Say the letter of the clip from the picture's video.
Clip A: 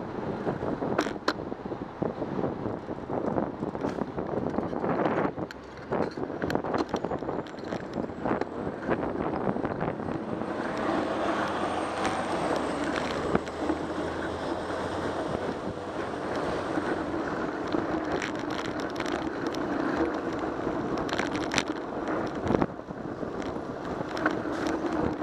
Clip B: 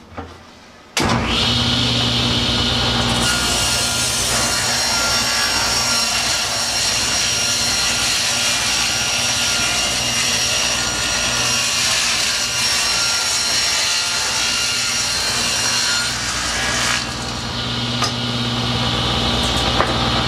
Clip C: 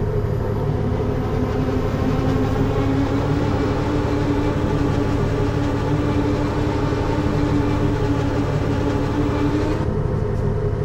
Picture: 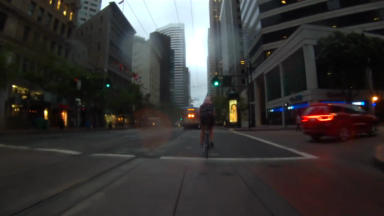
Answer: A